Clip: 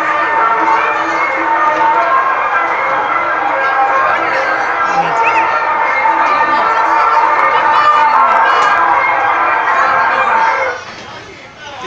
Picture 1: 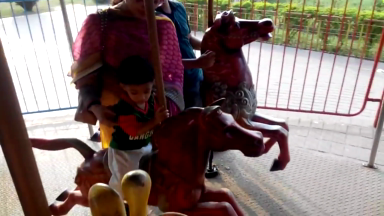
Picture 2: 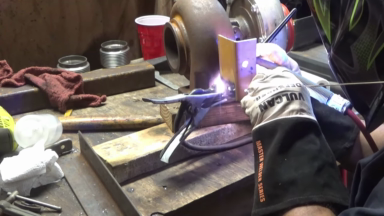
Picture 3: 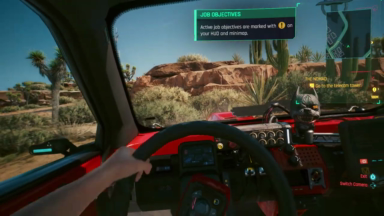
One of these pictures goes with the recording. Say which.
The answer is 1